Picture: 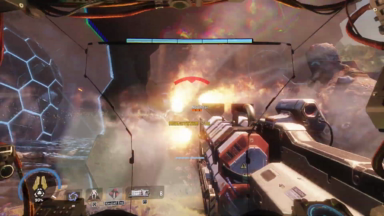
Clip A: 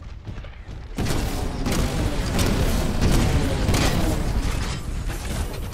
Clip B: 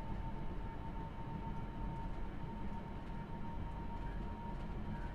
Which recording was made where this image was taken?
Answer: A